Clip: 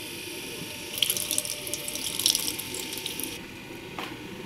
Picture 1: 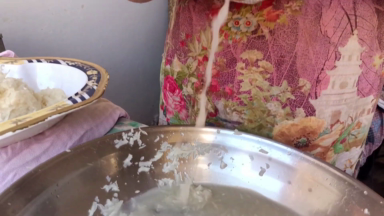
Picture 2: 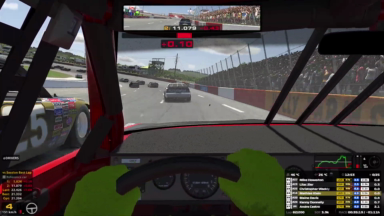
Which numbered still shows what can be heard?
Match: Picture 1